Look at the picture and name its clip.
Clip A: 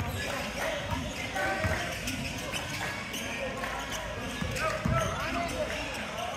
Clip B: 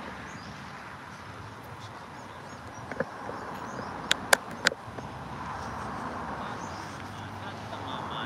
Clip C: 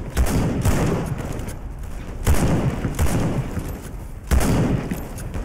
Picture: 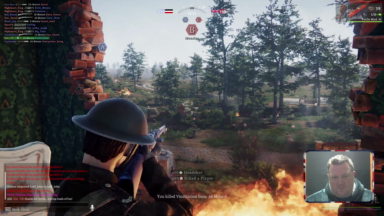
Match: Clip C